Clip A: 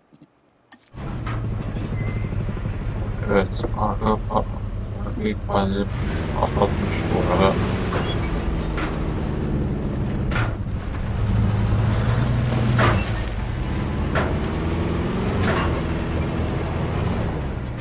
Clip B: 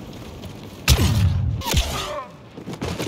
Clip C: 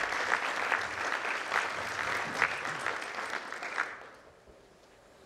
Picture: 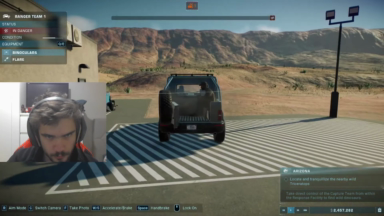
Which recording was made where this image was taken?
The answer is A